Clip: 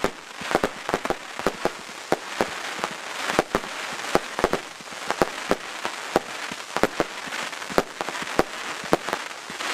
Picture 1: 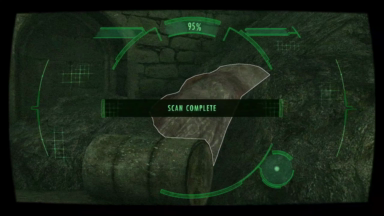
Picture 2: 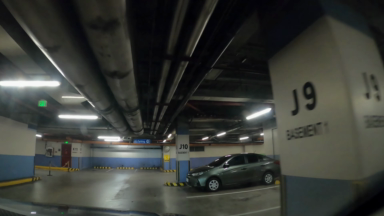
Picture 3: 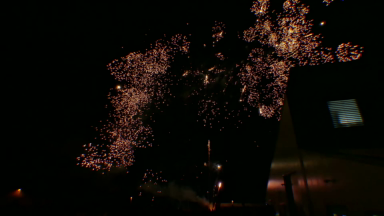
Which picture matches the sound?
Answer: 3